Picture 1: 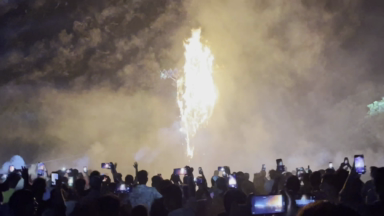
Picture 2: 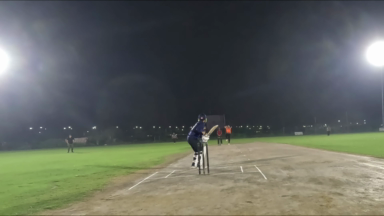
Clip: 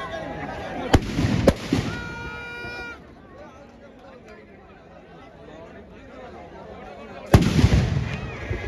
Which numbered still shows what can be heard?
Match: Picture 1